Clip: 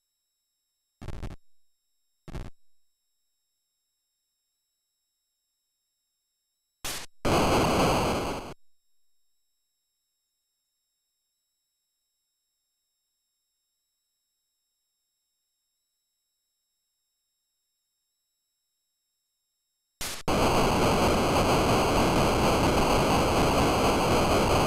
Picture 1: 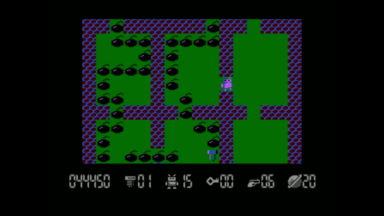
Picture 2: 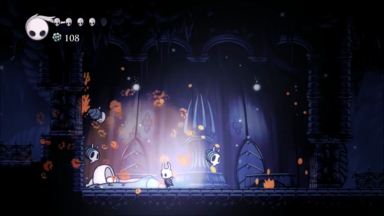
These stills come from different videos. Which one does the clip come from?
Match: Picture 1